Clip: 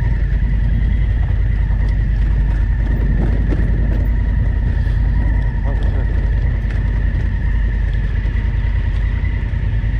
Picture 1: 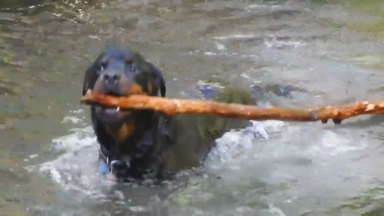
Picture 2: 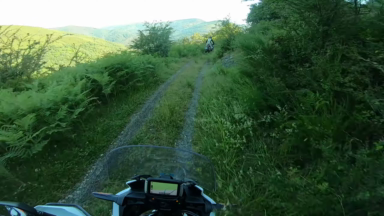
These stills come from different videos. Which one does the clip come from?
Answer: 2